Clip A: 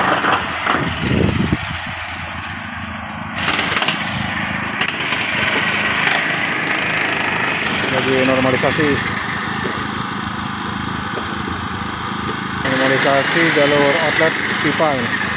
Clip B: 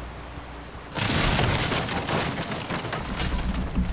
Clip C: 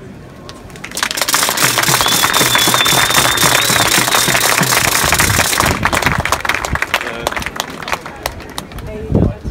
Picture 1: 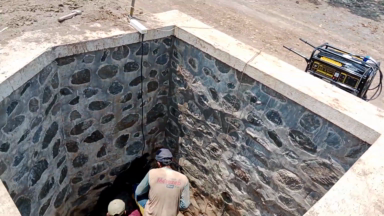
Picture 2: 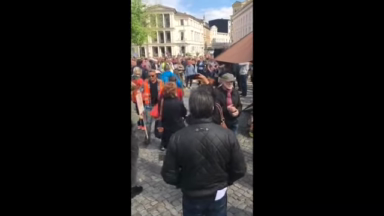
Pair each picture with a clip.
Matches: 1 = A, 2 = C